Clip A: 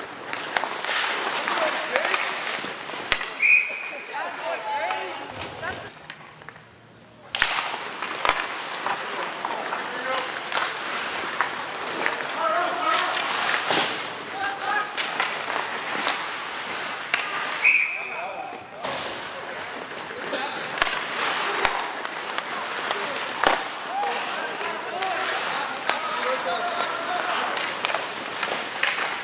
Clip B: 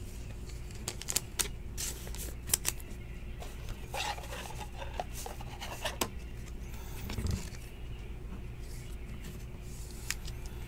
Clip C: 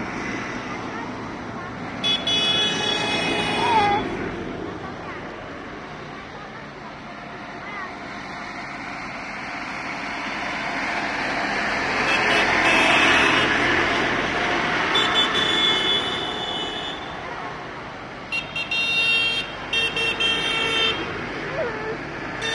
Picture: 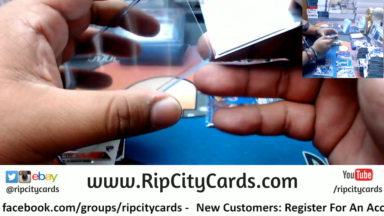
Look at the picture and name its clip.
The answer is B